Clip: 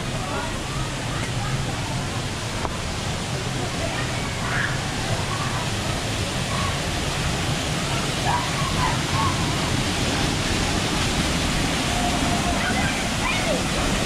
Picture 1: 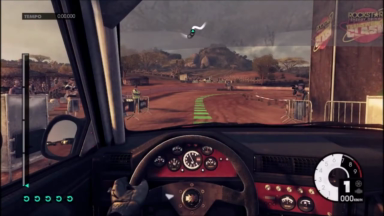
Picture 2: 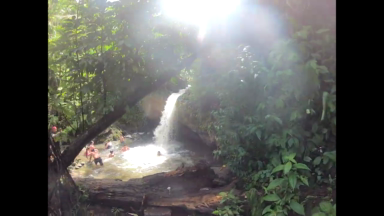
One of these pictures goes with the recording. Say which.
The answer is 2